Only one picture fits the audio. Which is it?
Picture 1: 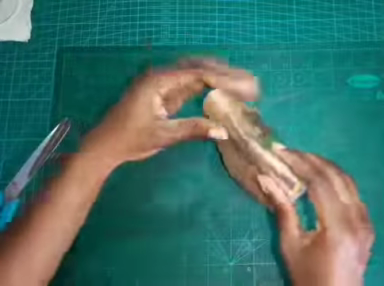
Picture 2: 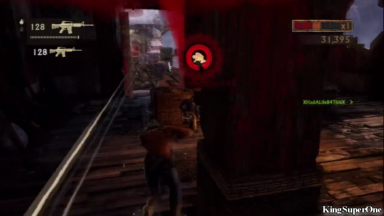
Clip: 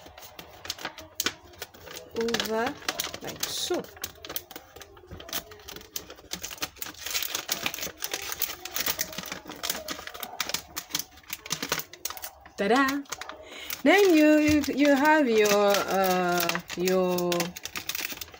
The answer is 1